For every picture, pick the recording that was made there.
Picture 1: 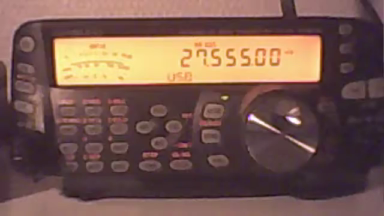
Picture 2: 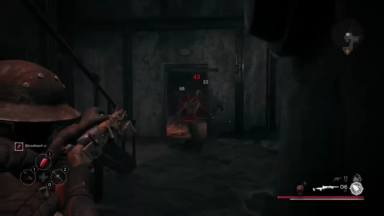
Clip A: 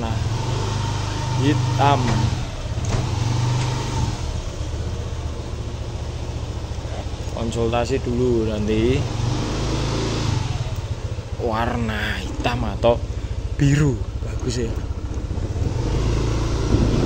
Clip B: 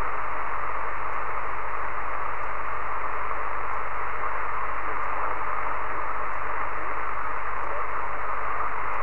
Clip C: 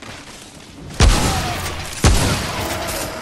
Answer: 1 B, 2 C